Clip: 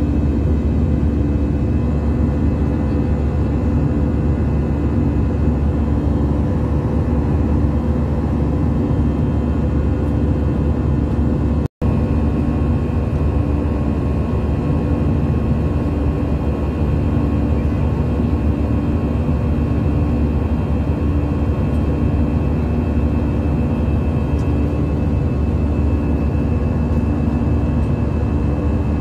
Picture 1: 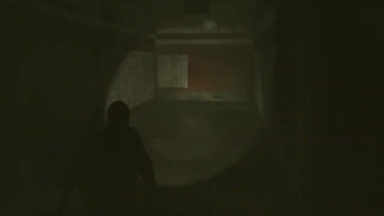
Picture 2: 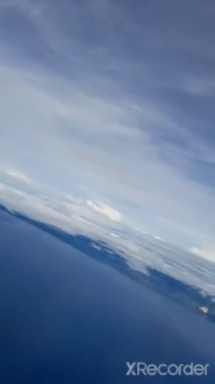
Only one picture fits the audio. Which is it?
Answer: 2